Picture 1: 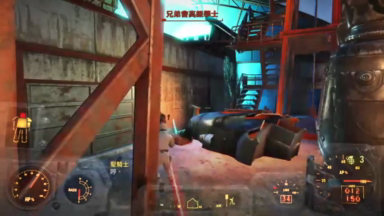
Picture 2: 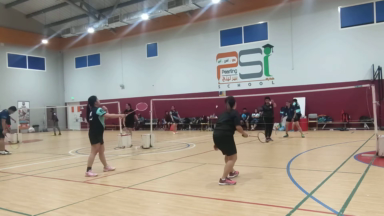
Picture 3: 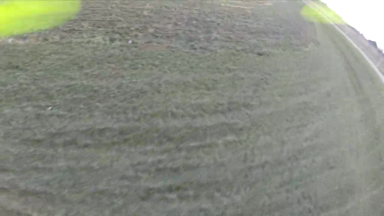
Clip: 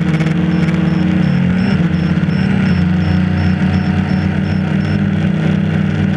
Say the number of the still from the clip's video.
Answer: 3